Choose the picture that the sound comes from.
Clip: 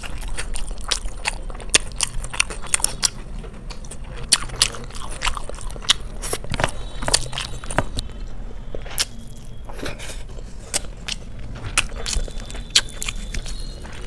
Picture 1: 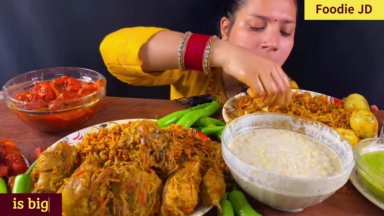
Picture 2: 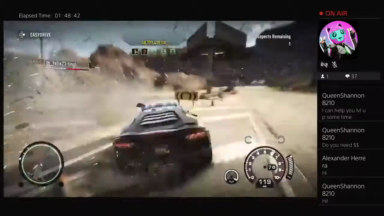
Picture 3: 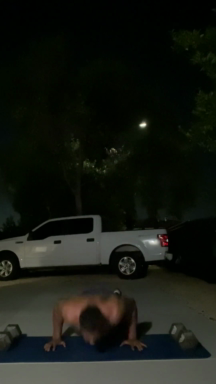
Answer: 1